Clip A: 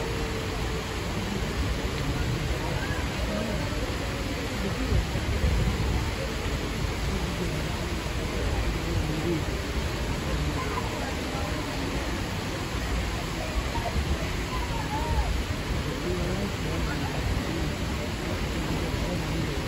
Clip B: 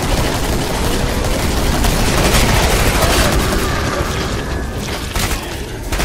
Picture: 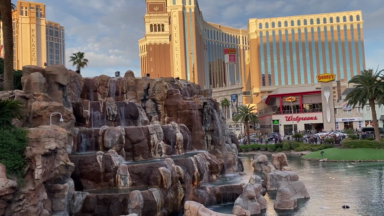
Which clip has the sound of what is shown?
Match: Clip A